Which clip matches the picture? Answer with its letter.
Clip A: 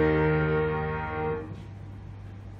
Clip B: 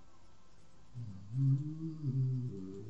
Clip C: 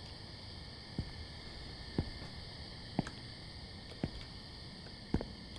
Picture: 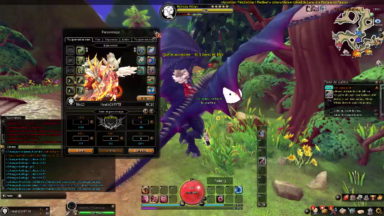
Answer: B